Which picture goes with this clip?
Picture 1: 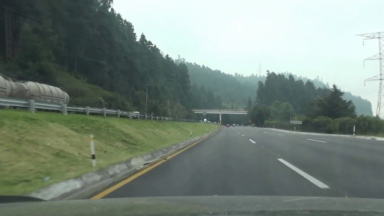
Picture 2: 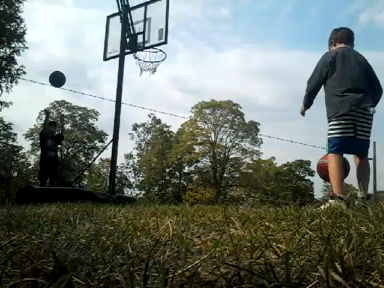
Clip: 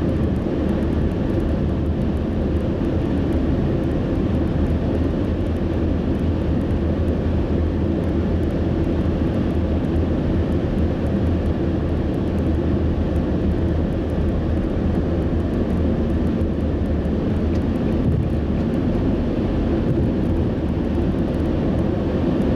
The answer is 1